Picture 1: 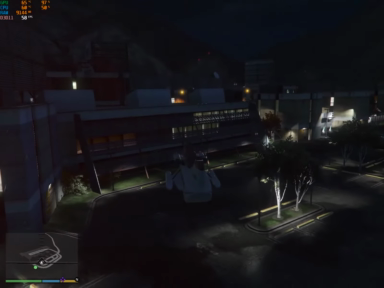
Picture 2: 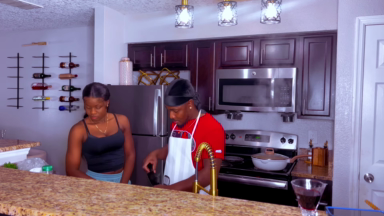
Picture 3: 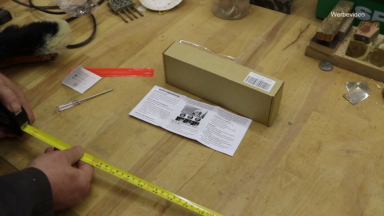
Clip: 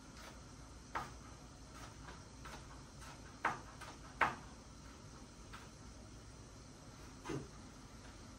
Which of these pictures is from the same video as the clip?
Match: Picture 2